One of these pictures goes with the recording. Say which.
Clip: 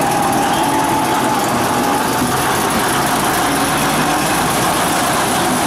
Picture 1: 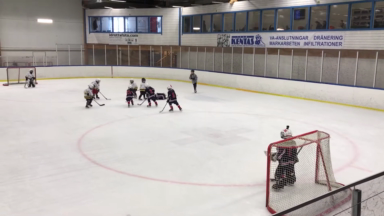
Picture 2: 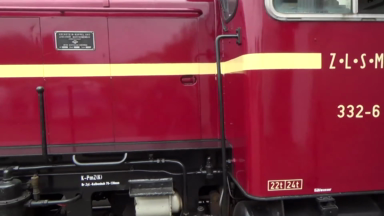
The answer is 2